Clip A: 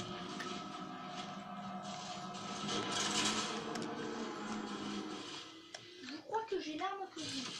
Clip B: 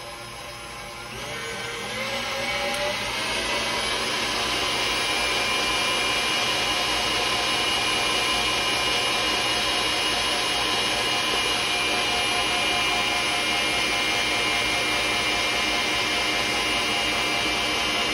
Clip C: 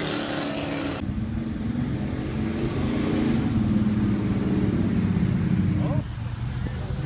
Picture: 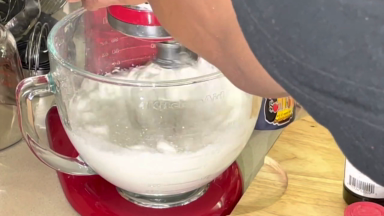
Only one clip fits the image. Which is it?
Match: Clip B